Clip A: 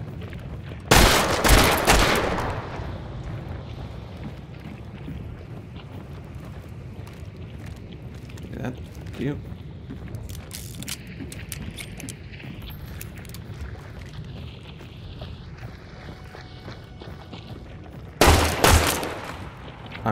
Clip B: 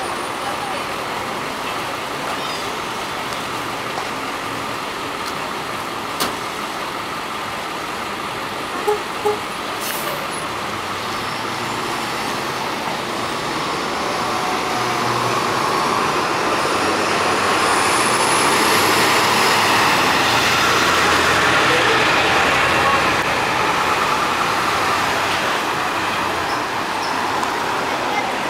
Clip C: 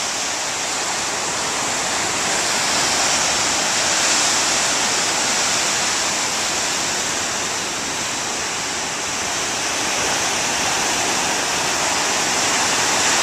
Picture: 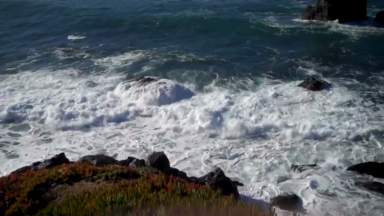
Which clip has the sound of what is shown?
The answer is C